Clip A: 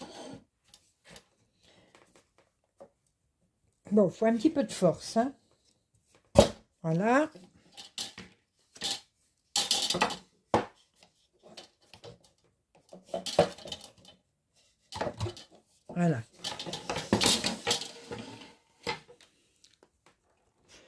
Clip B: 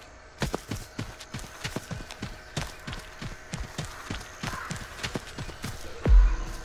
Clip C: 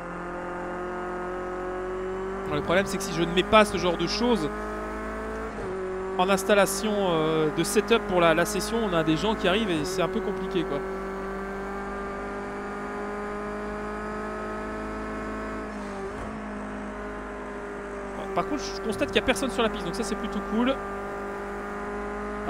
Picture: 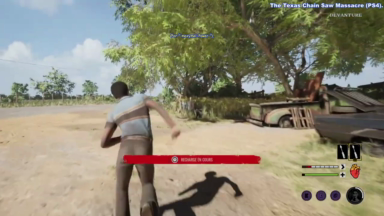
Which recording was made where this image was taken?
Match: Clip B